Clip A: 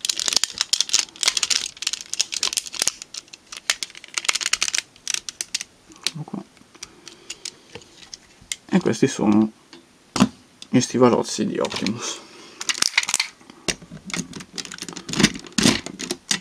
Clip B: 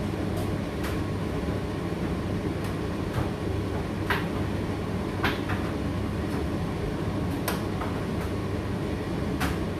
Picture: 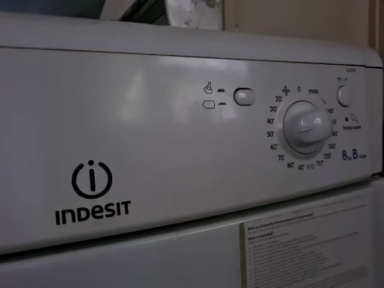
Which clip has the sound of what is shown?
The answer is B